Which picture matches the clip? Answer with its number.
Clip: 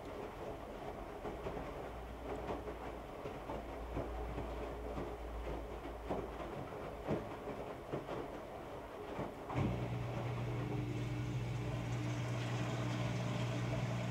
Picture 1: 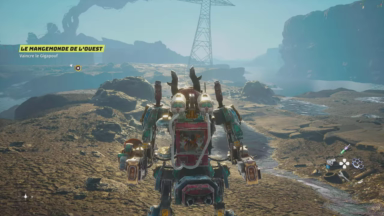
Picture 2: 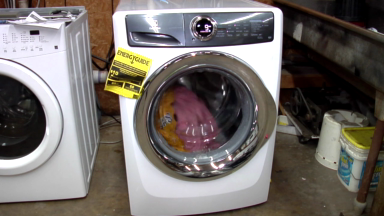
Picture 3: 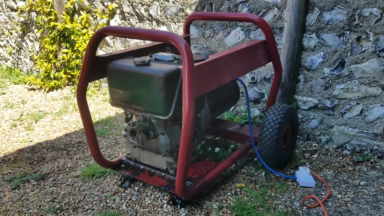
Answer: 2